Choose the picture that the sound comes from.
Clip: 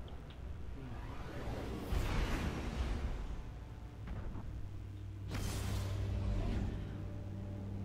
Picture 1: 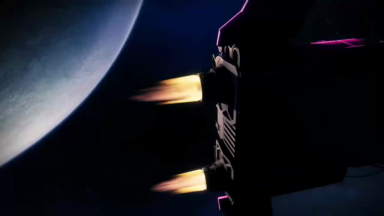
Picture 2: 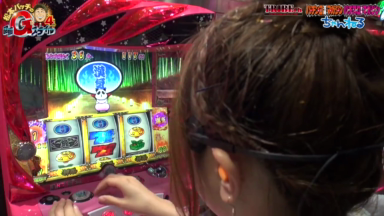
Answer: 1